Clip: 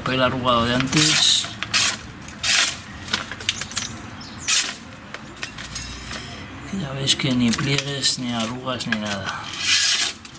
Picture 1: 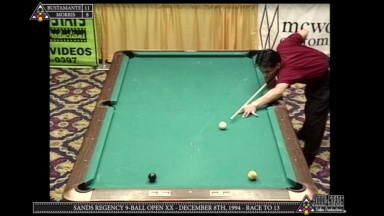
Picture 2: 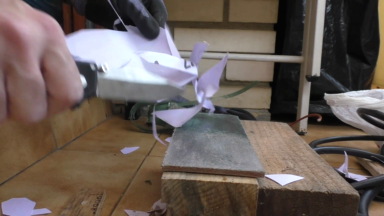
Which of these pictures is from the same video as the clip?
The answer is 2